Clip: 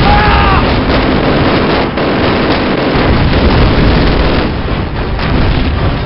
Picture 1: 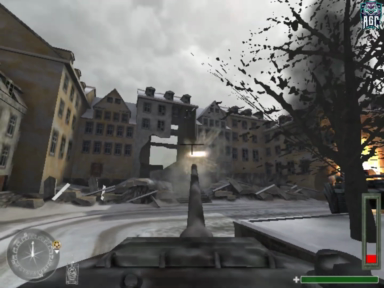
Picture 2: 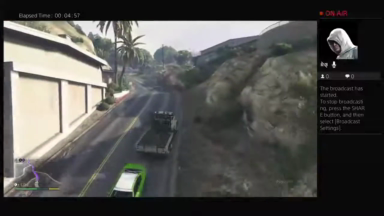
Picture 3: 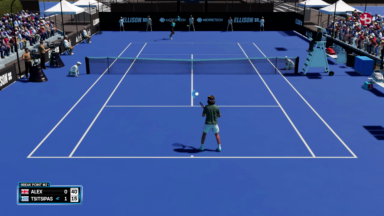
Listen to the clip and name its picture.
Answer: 1